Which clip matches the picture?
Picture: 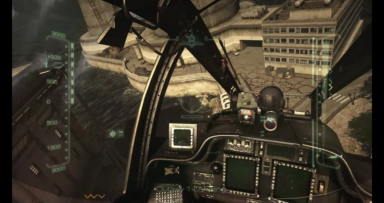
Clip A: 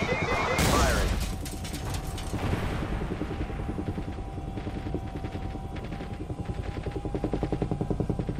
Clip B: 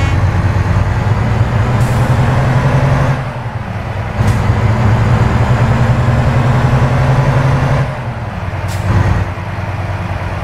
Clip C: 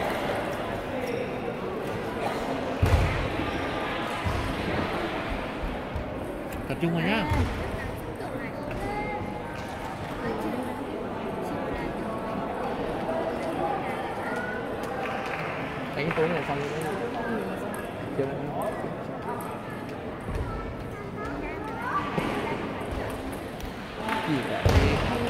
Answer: A